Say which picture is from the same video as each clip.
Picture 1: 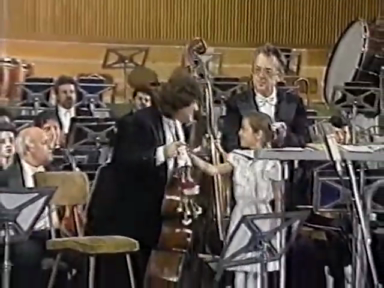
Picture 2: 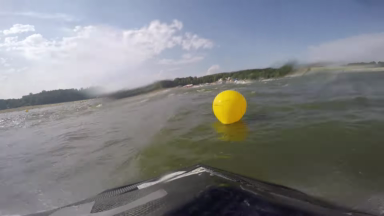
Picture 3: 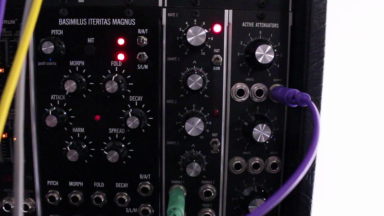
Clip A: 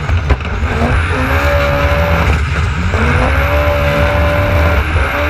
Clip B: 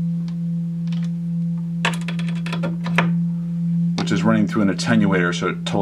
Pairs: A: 2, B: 3